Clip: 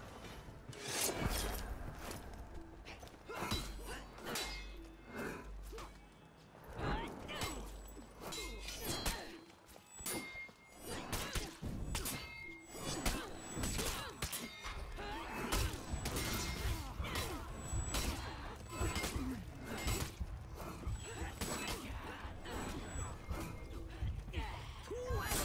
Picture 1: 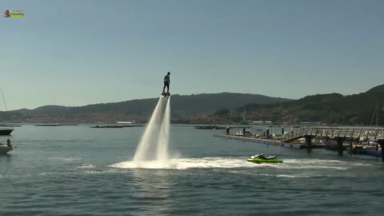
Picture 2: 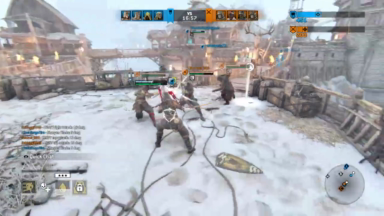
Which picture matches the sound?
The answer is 2